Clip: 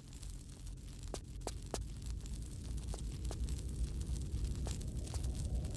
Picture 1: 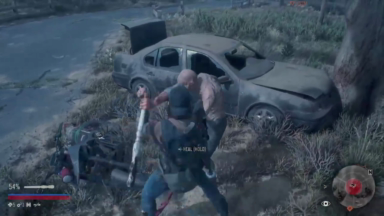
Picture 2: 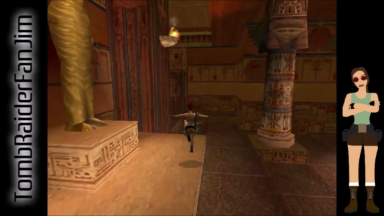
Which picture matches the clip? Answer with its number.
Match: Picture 2